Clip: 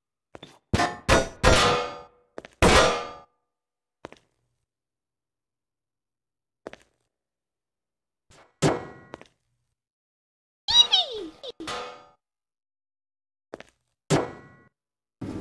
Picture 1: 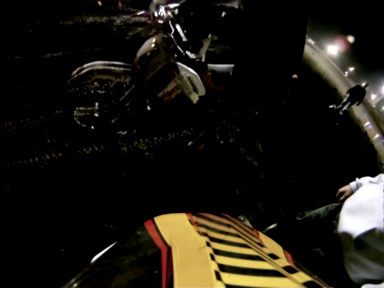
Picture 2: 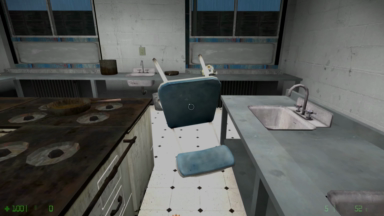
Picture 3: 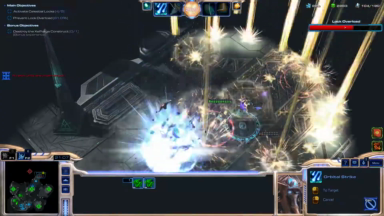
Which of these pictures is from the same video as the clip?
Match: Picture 2